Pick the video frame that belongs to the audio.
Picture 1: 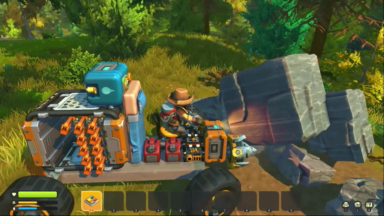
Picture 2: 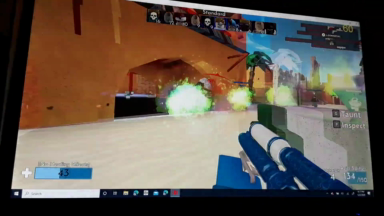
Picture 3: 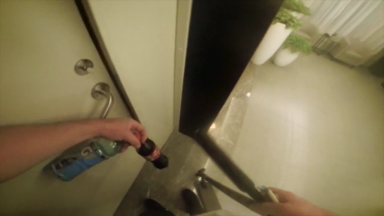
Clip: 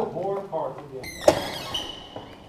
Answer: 3